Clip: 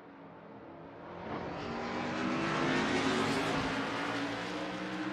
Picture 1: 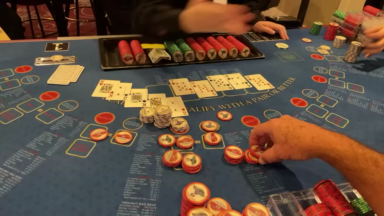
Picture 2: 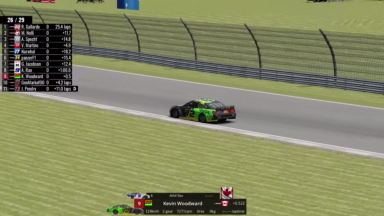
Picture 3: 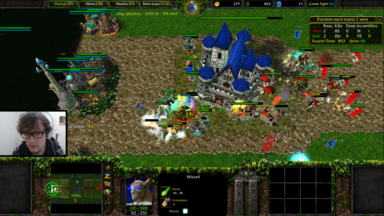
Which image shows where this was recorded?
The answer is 2